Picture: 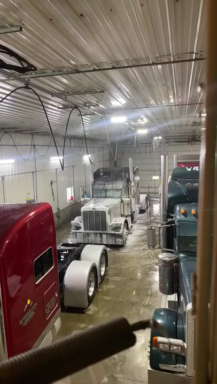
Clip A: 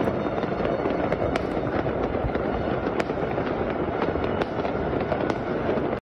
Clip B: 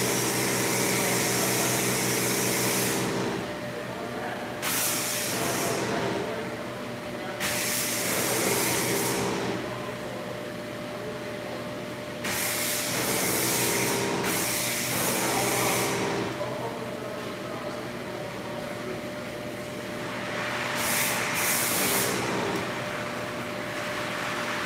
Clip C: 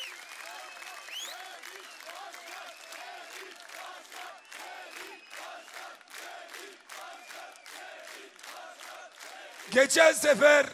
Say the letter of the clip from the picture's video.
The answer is B